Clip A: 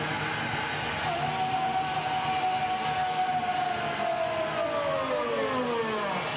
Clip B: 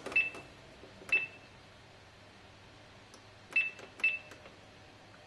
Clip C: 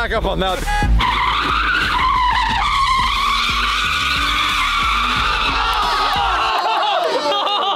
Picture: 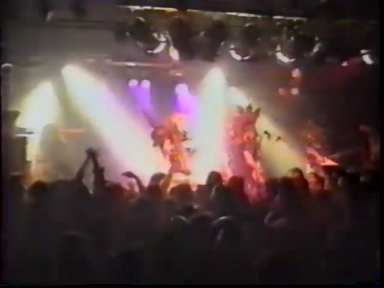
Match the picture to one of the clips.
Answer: A